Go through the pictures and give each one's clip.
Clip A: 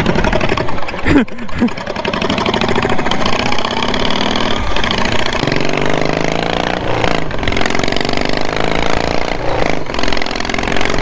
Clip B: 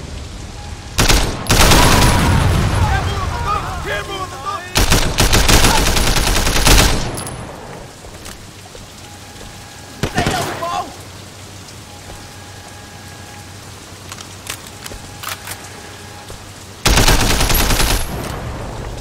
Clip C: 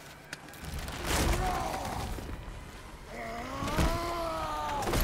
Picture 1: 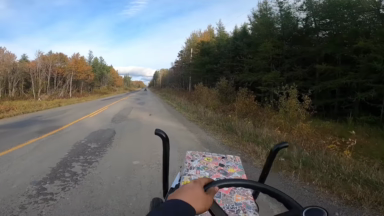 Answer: A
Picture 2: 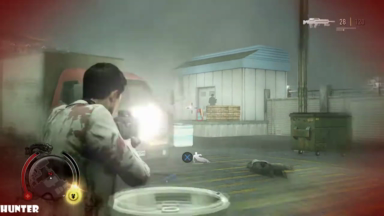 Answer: B